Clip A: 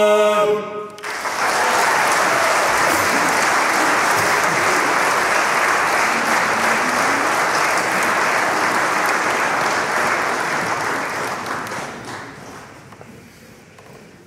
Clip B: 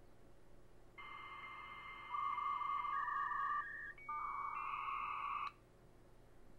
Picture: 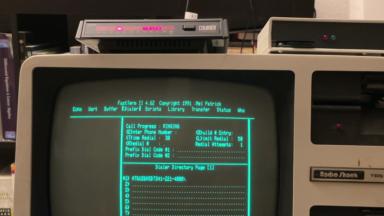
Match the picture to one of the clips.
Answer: B